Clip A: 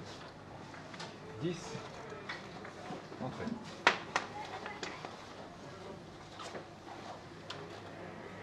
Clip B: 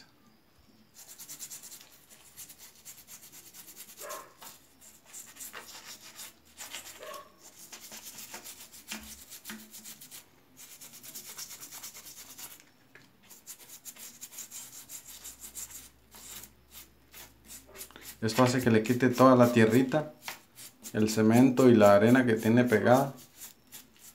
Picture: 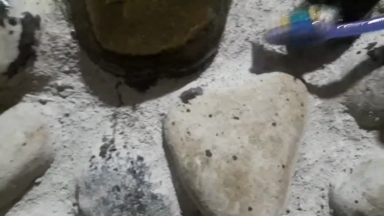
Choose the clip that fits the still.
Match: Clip B